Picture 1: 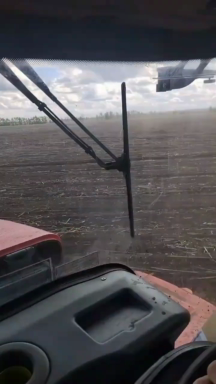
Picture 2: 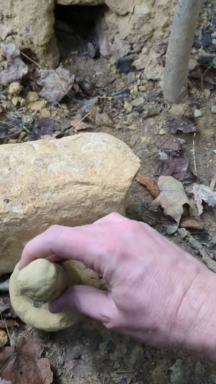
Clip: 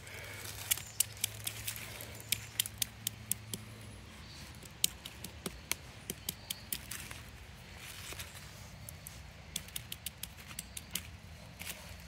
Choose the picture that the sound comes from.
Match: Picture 2